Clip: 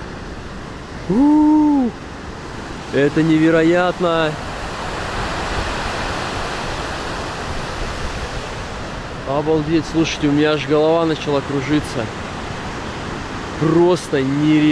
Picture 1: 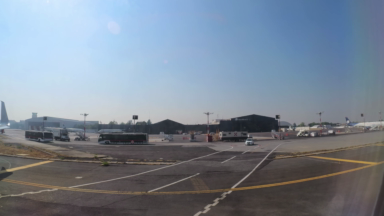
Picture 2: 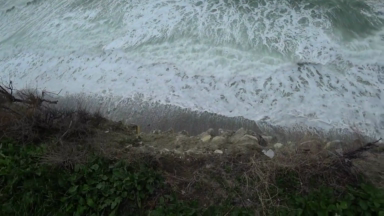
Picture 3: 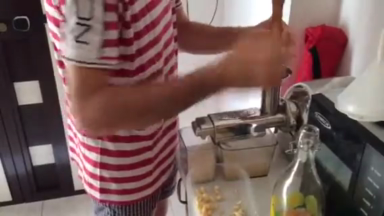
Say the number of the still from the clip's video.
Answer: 2